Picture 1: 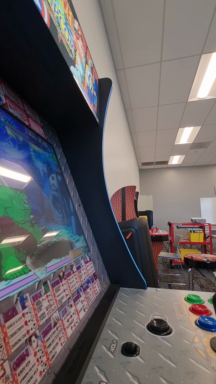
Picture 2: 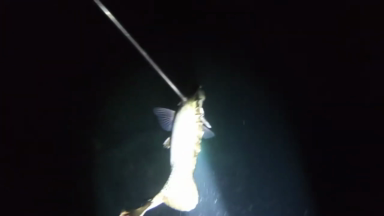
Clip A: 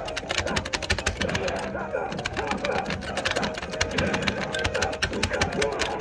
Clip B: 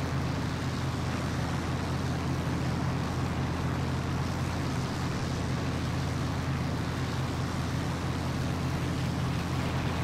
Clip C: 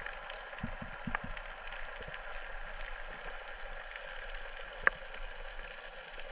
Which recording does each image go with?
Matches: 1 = A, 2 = C